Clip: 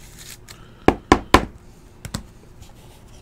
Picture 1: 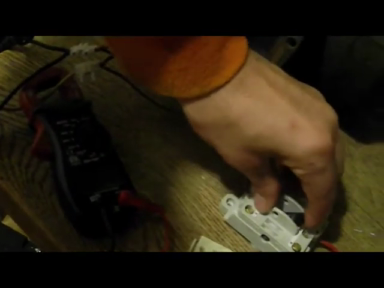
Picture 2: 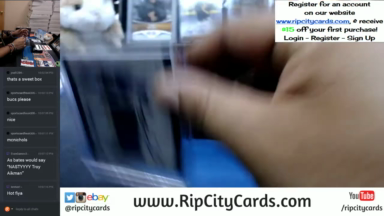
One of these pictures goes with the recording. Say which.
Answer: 2